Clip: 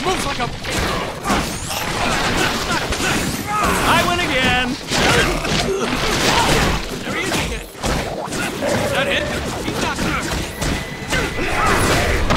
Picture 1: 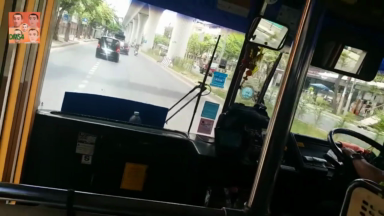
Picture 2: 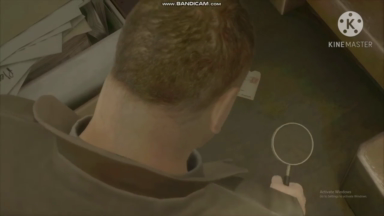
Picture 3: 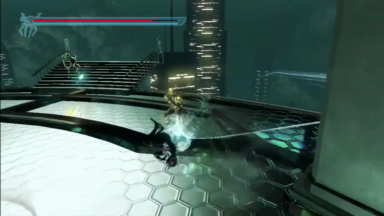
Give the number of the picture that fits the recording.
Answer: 3